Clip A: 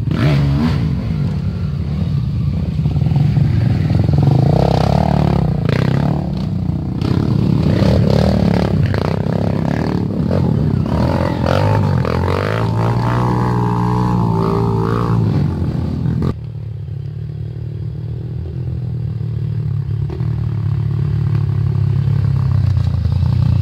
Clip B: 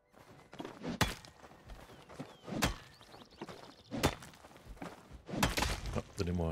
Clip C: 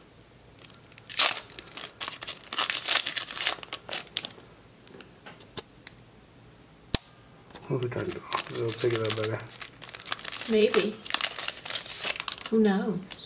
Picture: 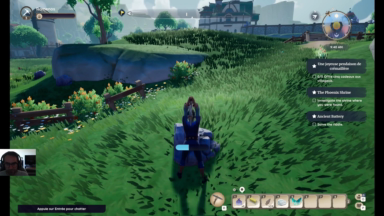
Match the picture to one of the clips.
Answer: B